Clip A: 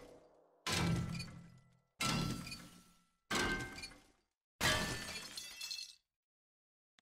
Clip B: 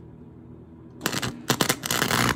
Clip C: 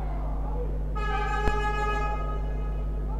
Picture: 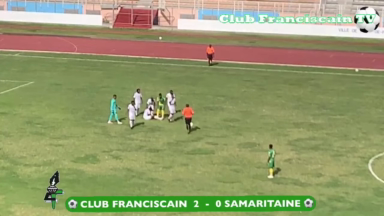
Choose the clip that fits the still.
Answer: C